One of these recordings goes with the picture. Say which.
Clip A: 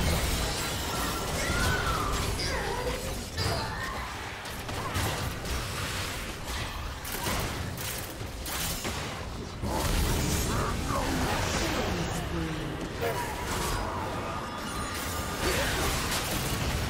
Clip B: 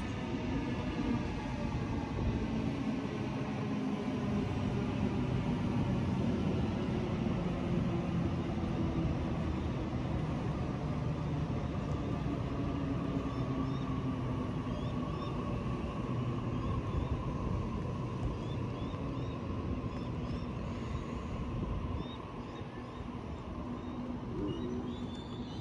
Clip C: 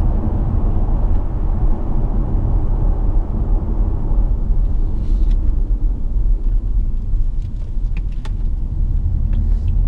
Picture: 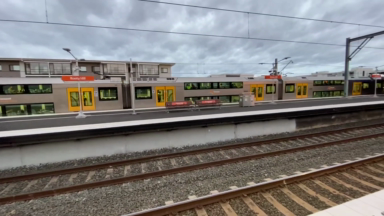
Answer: B